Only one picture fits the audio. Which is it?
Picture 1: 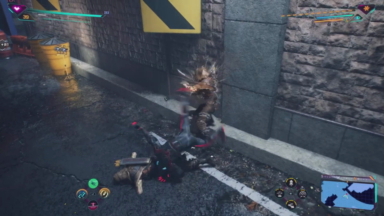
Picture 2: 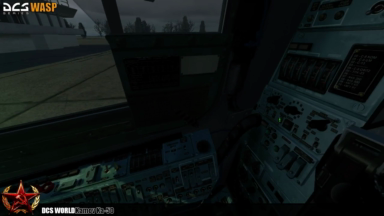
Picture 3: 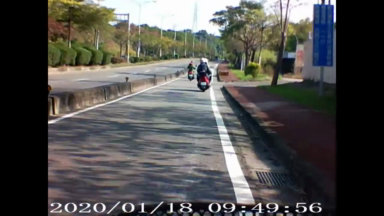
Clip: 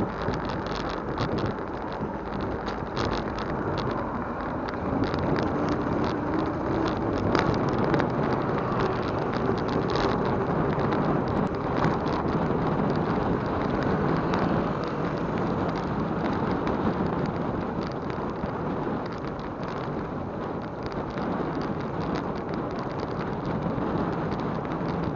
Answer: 3